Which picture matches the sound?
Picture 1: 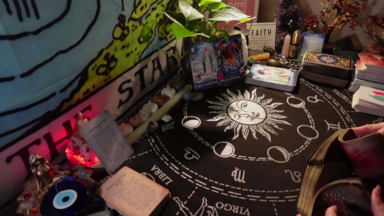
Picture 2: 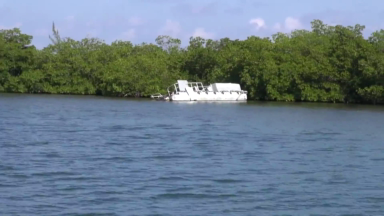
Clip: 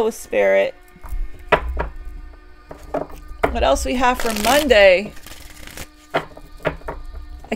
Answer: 1